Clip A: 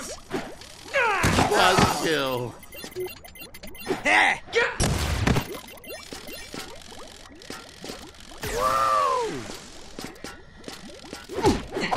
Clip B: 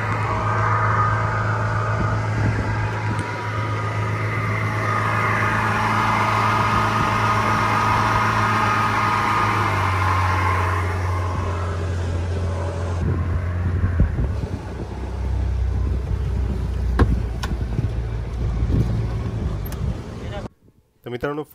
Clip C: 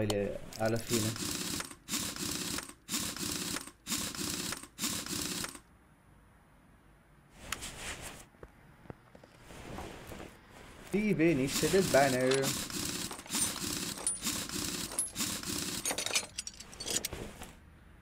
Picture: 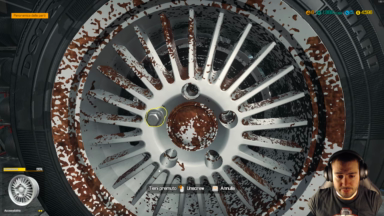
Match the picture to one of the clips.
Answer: C